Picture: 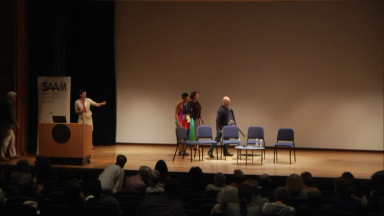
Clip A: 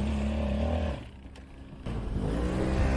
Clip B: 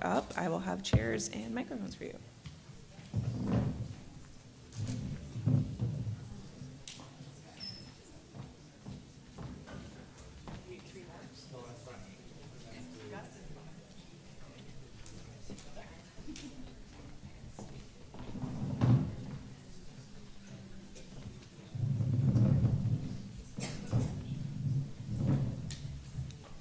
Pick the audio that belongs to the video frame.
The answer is B